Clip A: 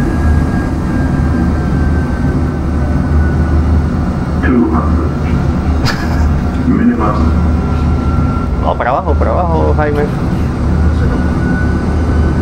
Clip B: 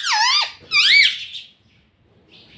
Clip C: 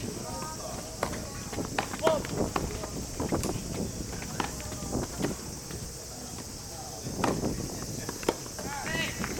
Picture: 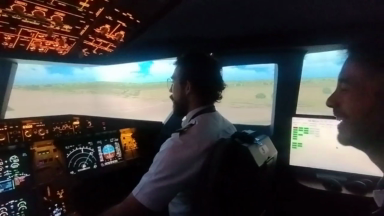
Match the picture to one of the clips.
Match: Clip A